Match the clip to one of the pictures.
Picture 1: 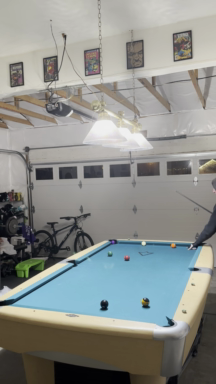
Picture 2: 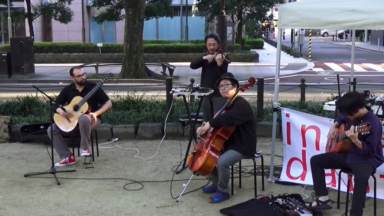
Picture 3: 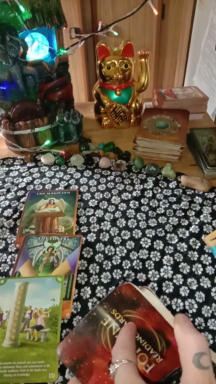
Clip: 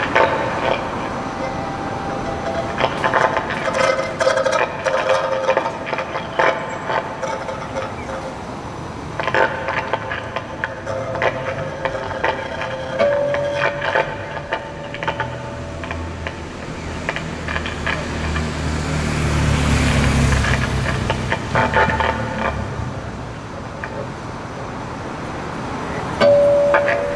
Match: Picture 2